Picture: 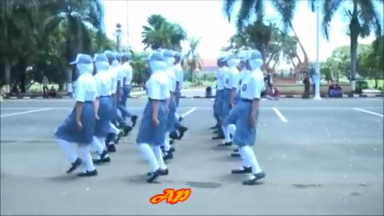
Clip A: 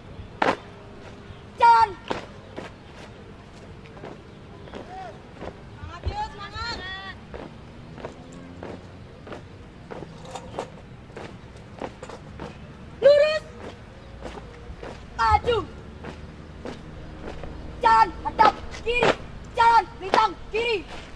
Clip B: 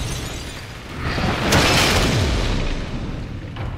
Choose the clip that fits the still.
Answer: A